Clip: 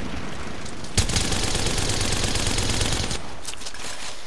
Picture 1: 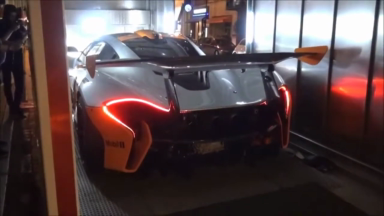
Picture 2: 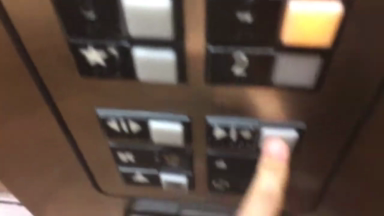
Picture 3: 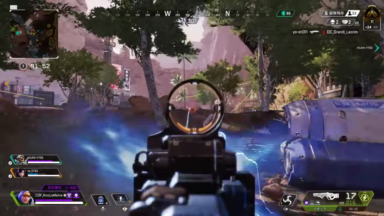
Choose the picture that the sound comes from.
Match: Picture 3